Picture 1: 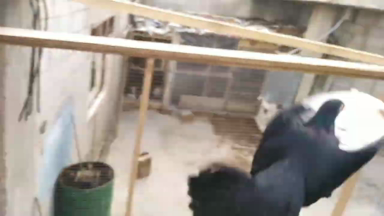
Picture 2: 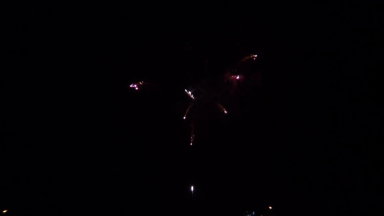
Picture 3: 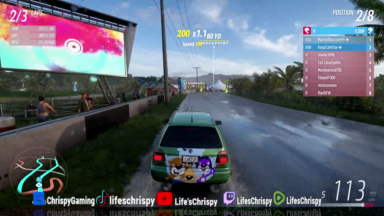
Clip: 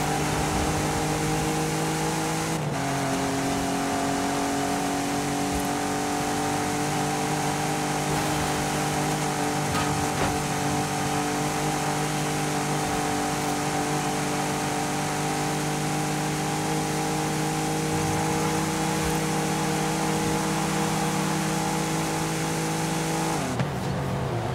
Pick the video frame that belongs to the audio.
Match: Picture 3